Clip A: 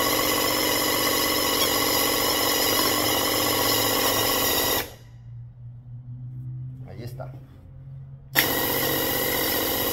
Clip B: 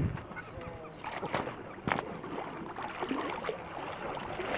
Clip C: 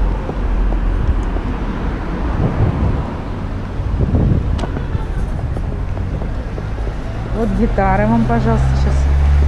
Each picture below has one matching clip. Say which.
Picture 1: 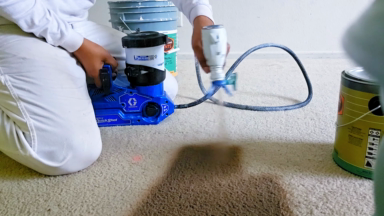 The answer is A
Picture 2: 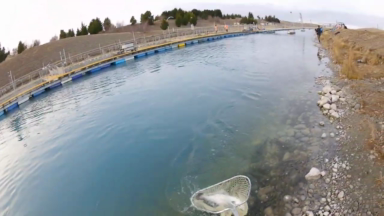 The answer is B